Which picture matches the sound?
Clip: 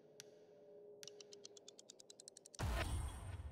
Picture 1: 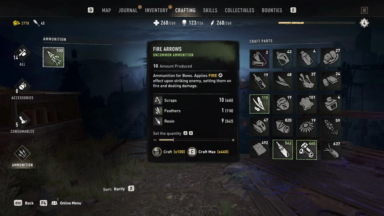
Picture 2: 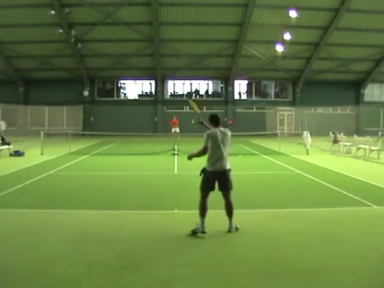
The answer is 1